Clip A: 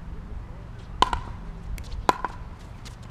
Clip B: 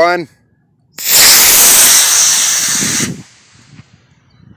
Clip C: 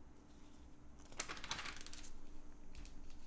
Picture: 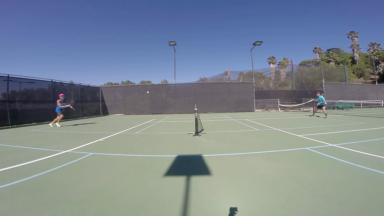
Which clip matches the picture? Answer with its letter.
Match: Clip A